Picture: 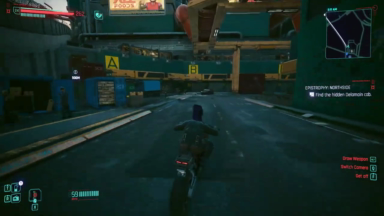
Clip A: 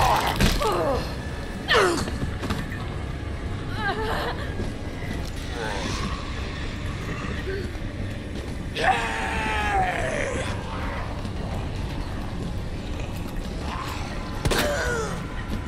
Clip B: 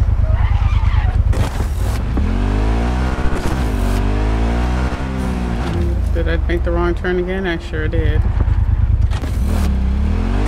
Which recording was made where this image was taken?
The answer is B